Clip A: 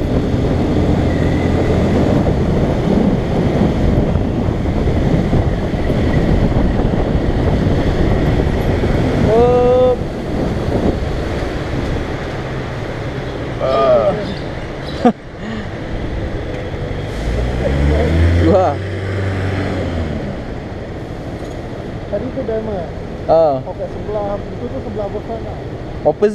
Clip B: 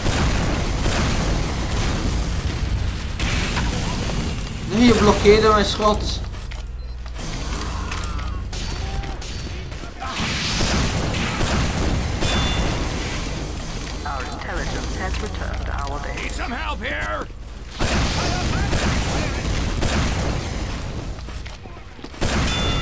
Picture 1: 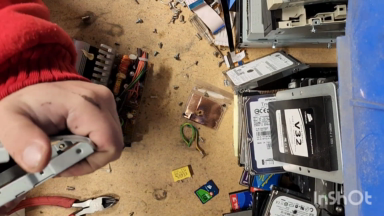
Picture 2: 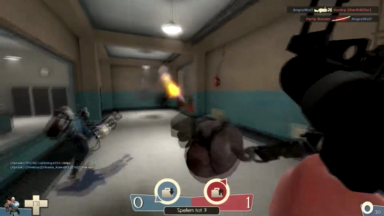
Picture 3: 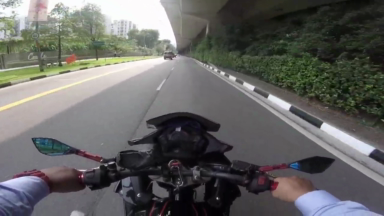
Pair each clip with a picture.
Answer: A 3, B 2